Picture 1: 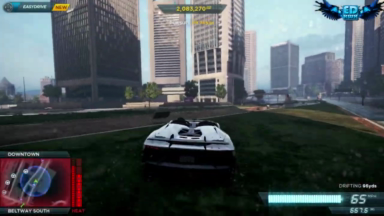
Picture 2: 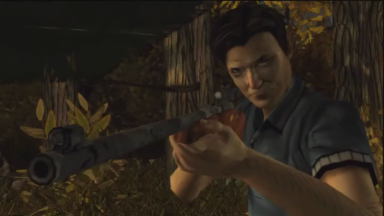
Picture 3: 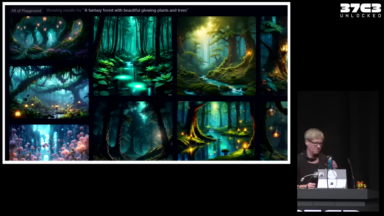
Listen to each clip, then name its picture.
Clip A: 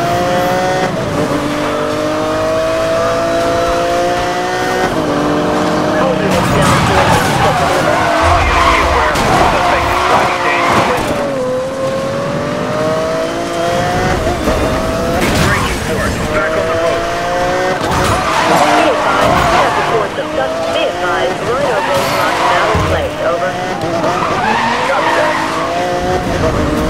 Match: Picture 1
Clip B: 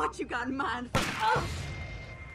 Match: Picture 2